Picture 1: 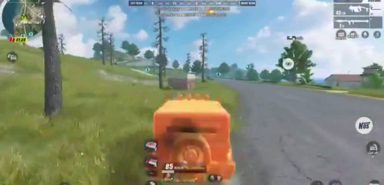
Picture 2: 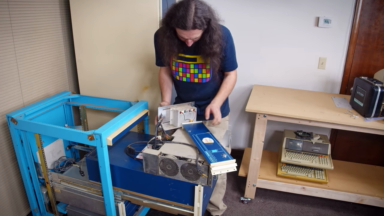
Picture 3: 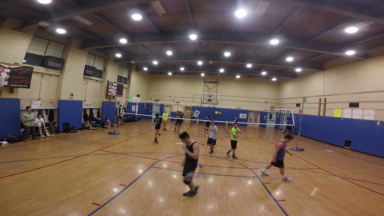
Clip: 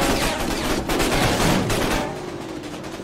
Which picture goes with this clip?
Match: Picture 1